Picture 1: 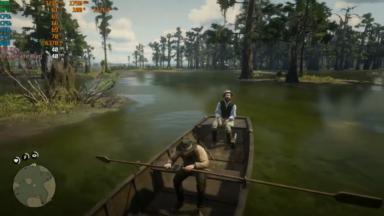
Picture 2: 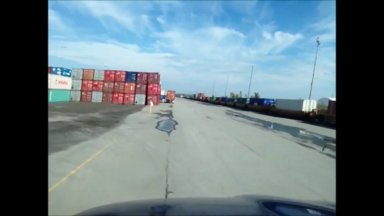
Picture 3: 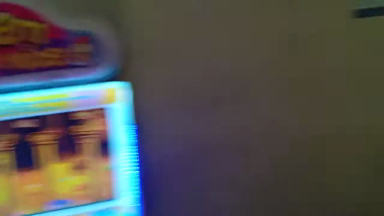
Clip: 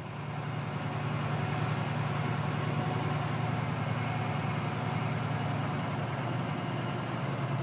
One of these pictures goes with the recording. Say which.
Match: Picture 2